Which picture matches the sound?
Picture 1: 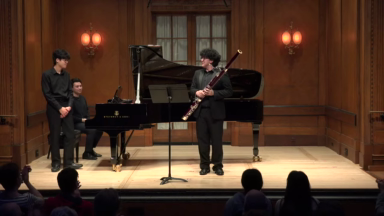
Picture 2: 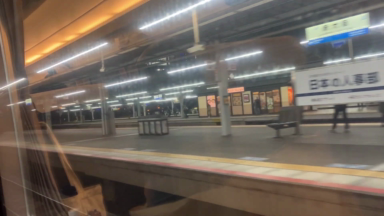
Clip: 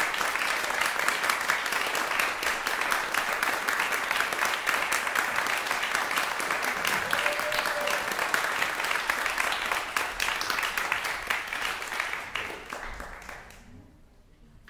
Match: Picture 1